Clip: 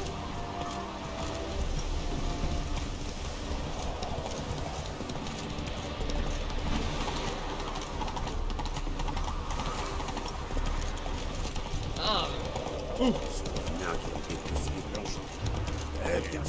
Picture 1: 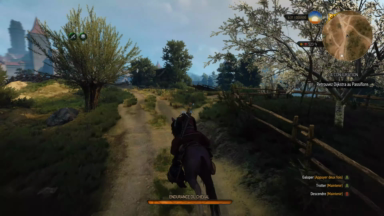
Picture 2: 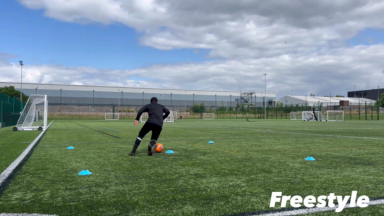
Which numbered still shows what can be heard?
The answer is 1